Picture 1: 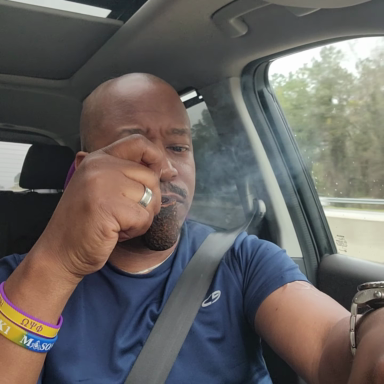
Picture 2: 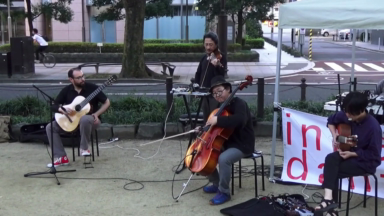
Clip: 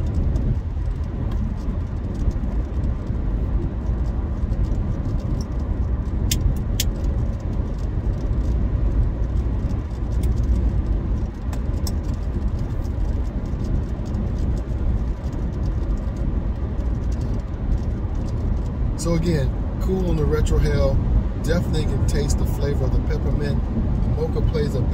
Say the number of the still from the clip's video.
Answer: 1